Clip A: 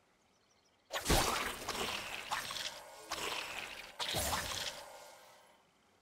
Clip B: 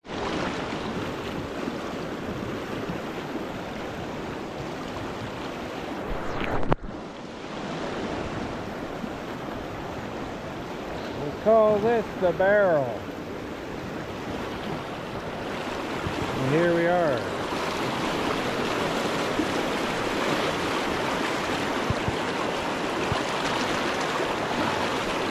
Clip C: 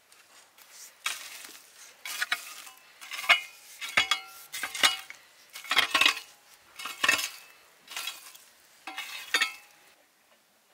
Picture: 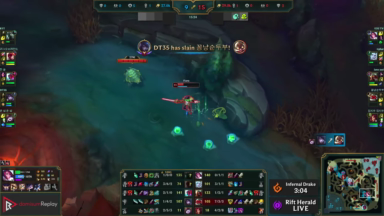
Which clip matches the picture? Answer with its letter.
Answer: A